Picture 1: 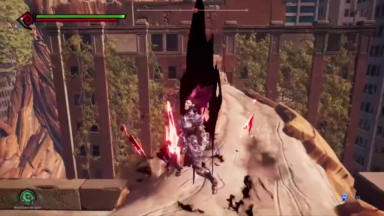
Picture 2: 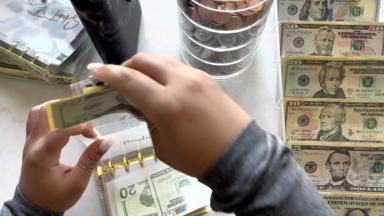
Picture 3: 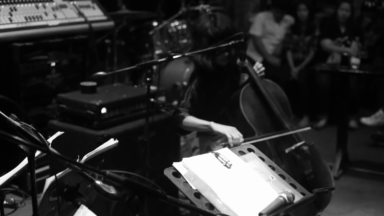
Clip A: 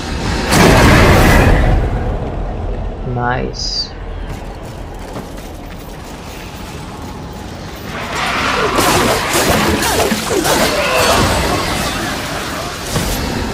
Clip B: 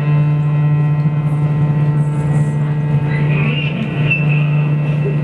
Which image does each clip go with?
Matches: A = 1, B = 3